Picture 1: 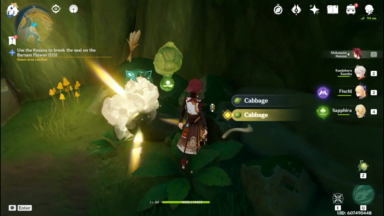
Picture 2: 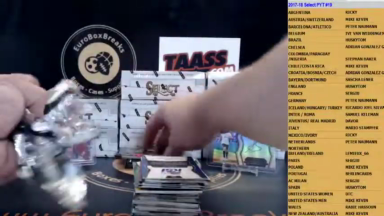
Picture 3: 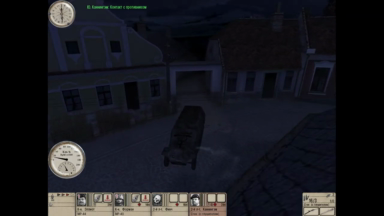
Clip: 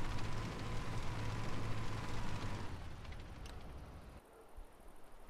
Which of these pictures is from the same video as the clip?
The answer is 3